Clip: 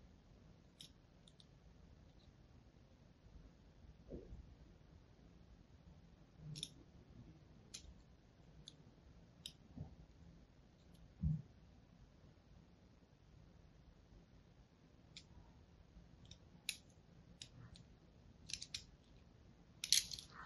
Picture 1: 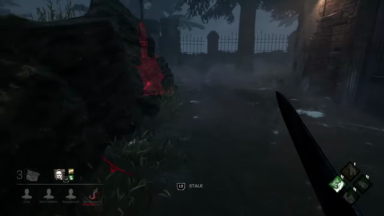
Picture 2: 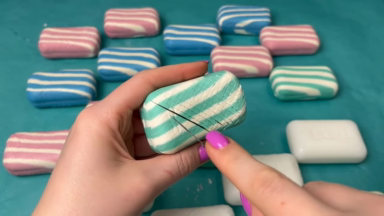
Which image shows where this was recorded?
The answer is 2